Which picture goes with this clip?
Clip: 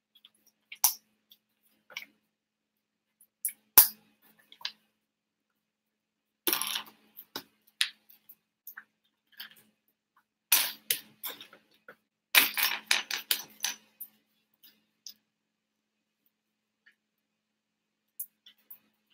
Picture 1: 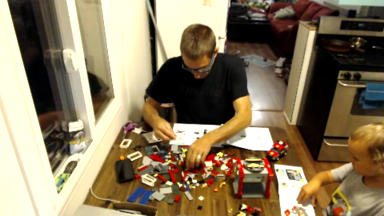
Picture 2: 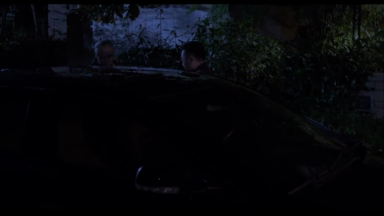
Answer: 1